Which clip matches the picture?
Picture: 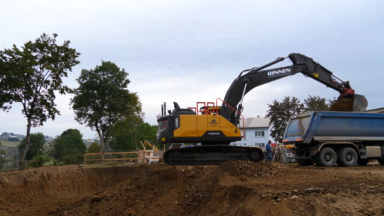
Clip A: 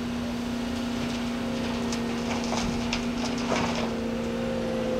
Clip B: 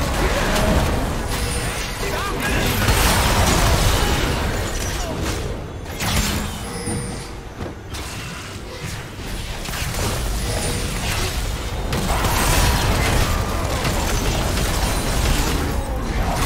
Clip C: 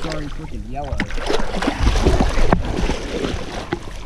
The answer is A